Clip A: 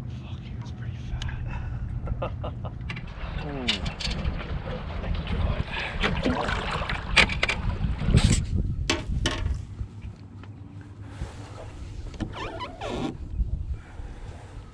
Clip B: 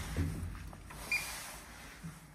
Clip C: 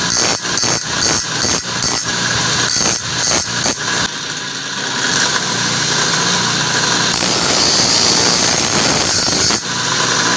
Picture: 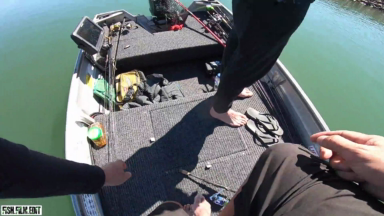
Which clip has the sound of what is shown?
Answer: A